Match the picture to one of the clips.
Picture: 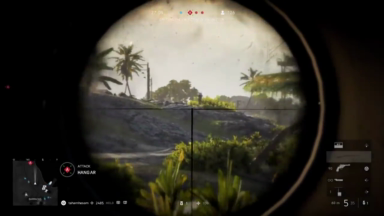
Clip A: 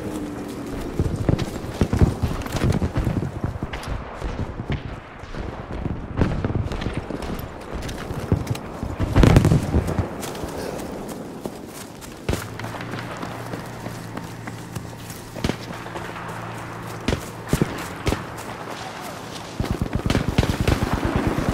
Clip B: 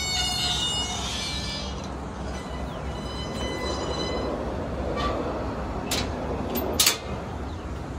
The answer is A